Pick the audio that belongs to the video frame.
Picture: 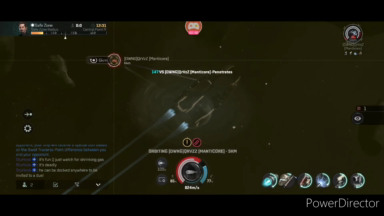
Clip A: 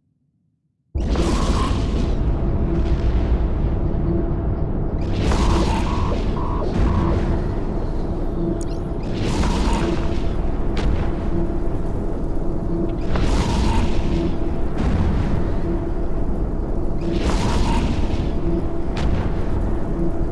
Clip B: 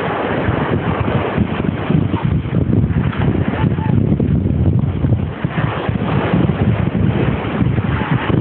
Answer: A